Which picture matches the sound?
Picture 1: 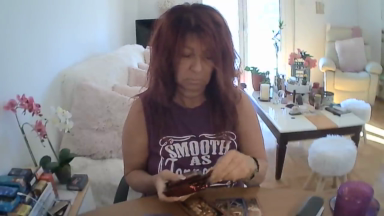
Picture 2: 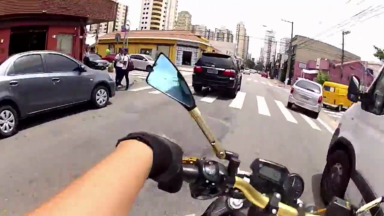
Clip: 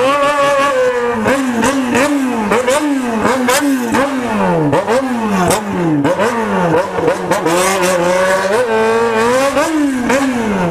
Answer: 2